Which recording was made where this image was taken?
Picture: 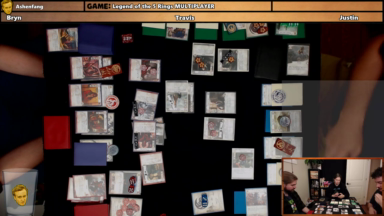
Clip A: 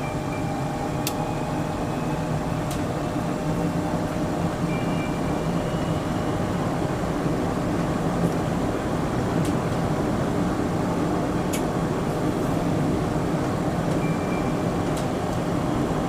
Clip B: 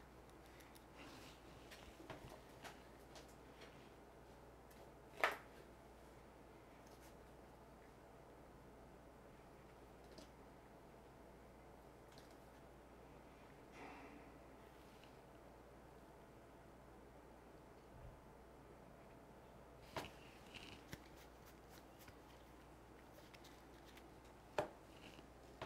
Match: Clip B